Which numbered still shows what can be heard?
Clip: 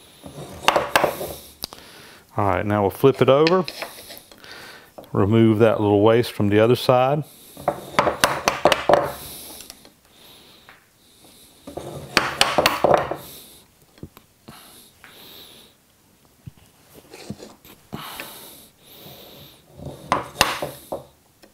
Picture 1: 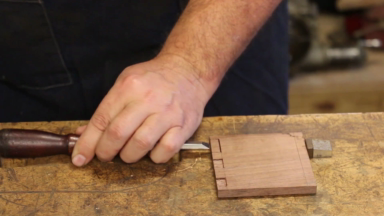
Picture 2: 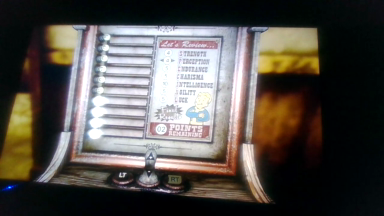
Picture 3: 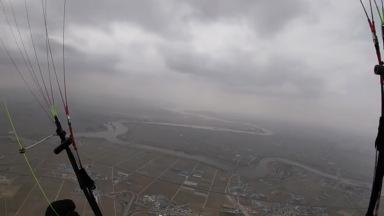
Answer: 1